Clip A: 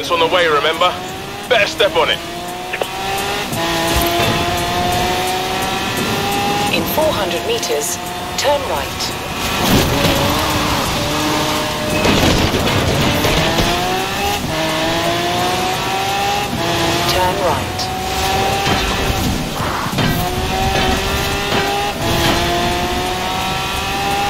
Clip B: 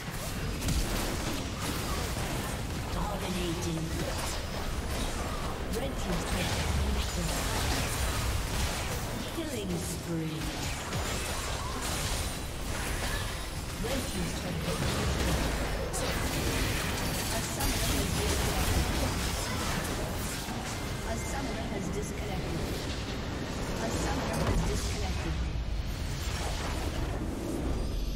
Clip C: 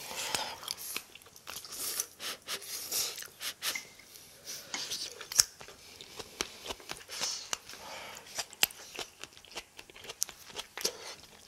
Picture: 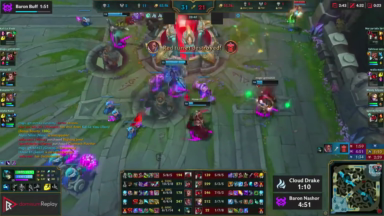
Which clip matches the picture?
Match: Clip B